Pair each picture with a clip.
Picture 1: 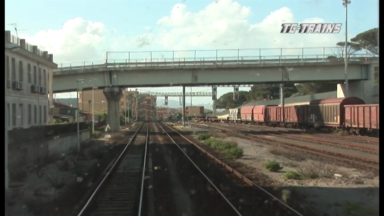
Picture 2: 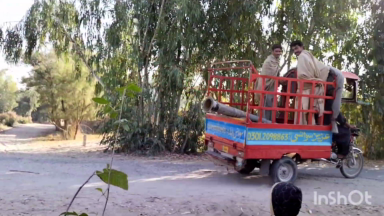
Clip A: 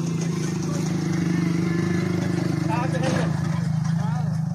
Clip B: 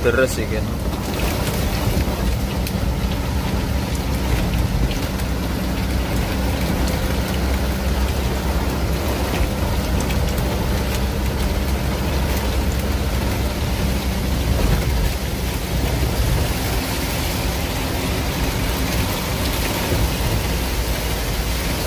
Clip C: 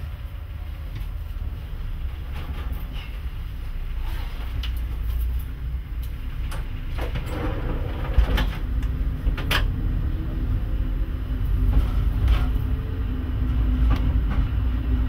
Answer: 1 C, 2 A